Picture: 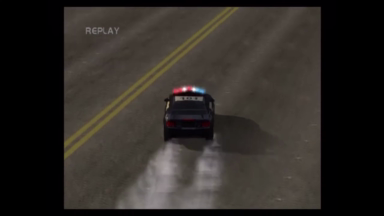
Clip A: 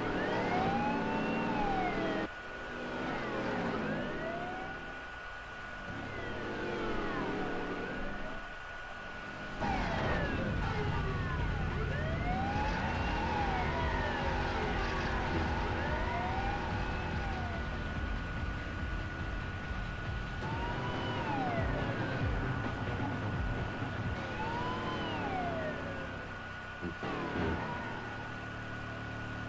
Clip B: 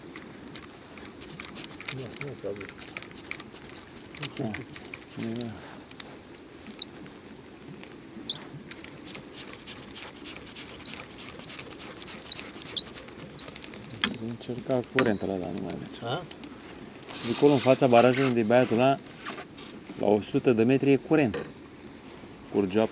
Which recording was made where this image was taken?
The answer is A